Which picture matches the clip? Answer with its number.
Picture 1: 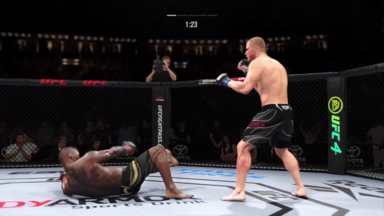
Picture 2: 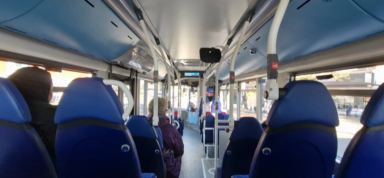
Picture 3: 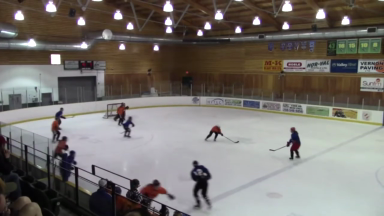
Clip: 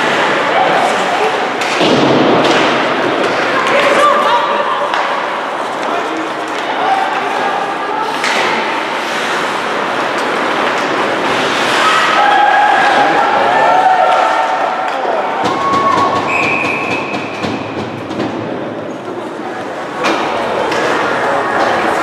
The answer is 3